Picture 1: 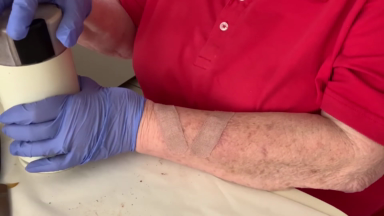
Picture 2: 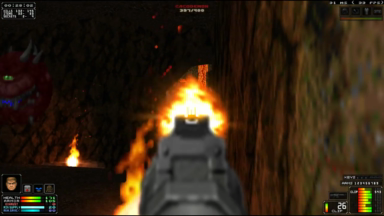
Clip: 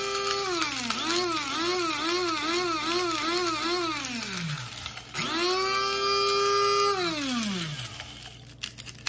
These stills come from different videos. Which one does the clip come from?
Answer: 1